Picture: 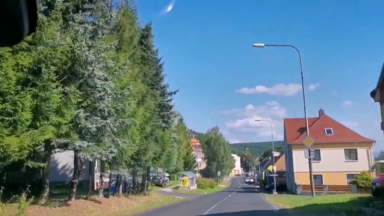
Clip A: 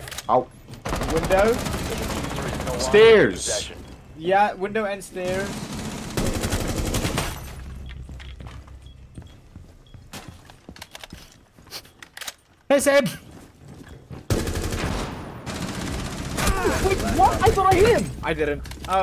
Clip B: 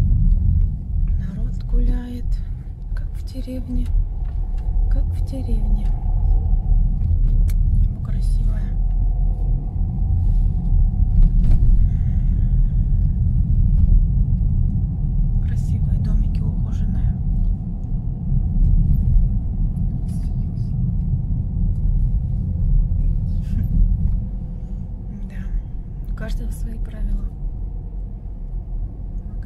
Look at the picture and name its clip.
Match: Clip B